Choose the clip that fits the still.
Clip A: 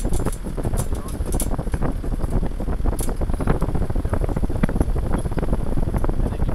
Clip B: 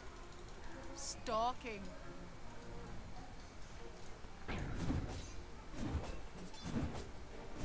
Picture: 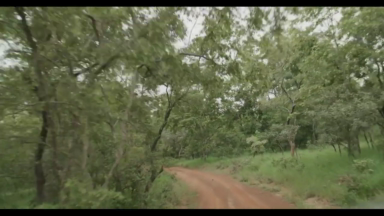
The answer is A